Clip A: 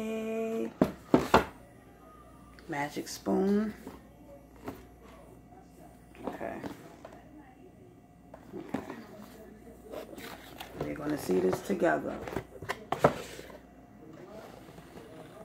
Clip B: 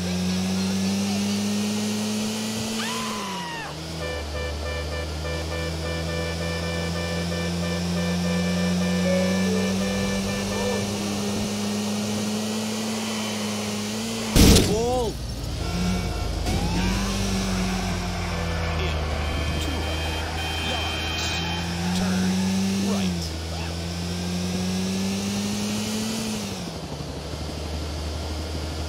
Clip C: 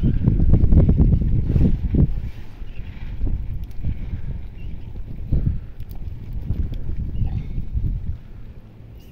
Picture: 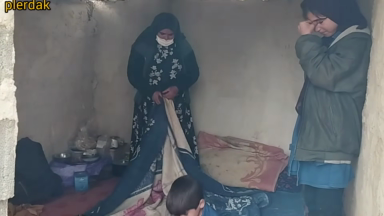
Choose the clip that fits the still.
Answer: C